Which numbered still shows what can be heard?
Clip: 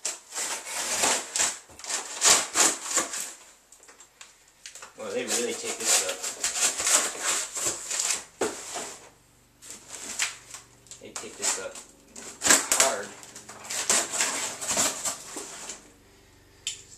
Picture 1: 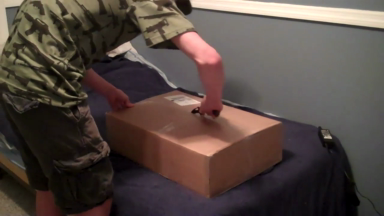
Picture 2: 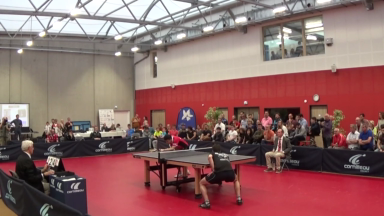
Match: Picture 1